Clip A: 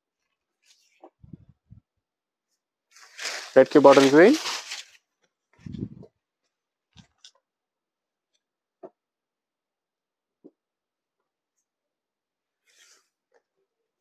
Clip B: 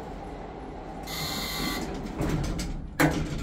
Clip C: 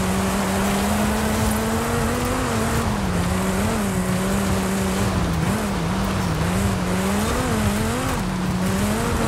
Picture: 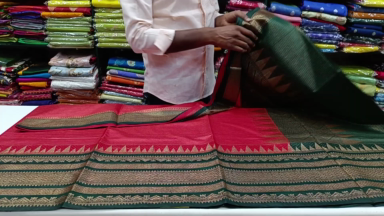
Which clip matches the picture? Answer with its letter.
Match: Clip A